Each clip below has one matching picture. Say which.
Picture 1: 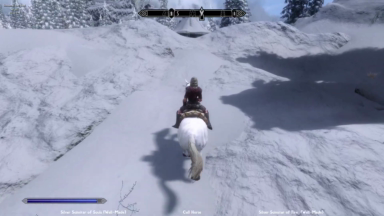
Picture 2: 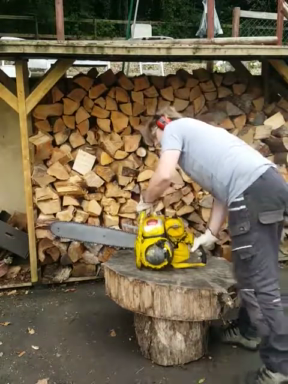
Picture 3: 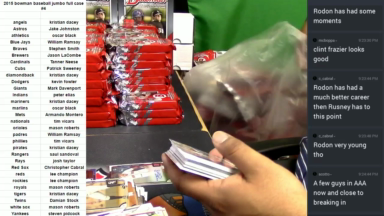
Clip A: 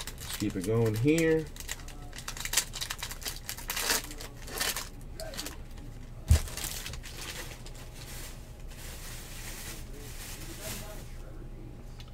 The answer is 3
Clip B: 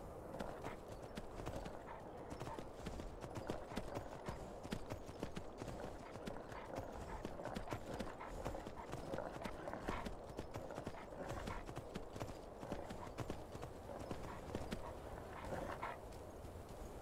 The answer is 1